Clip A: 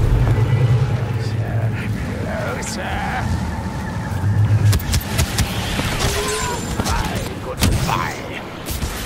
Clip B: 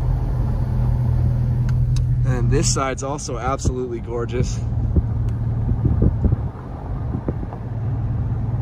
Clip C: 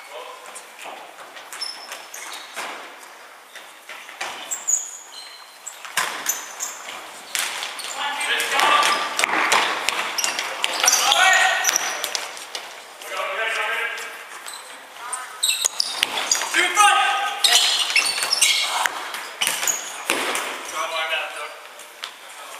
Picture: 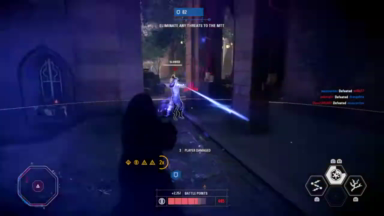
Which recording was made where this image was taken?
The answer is A